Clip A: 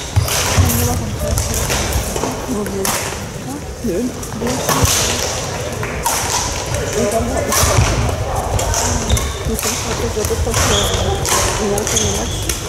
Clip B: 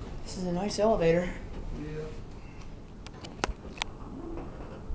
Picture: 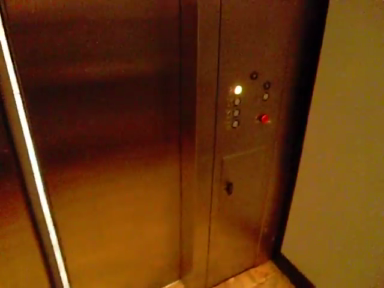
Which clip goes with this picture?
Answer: B